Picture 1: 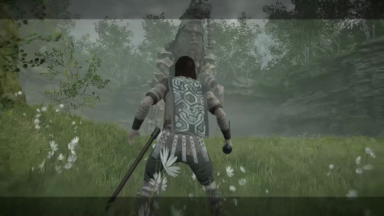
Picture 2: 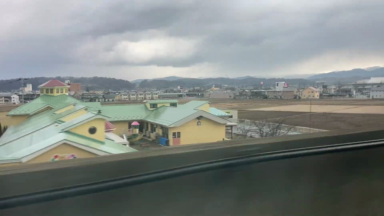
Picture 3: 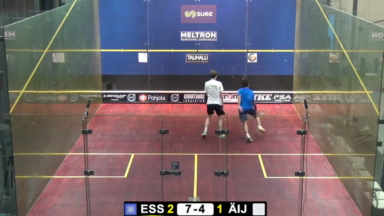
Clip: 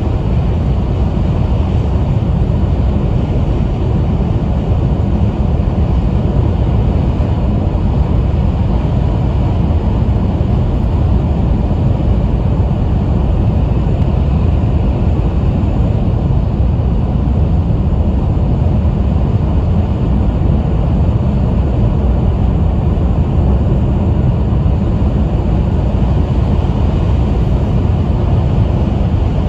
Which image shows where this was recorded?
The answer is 2